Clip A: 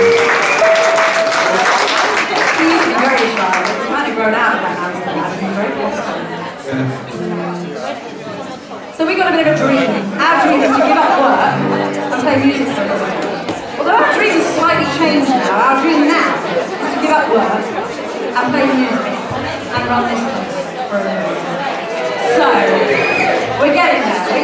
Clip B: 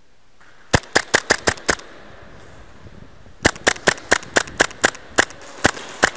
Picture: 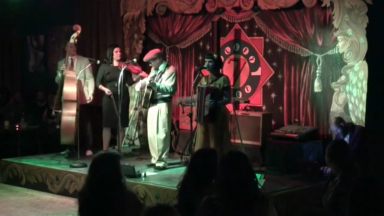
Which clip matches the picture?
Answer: A